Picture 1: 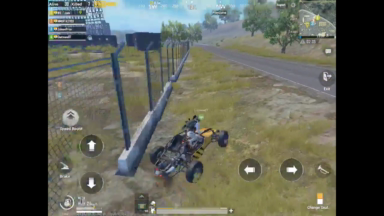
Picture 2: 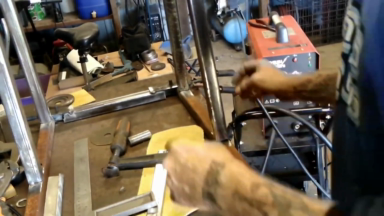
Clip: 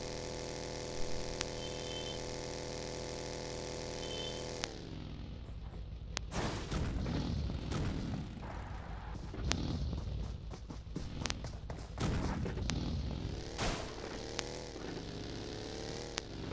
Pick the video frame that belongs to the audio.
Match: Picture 1